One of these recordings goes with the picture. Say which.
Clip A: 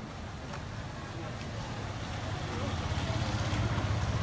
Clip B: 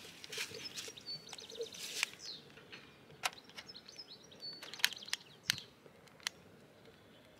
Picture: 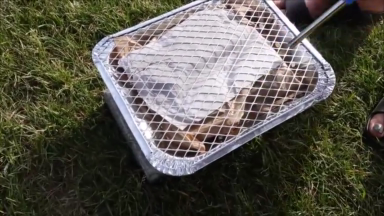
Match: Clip B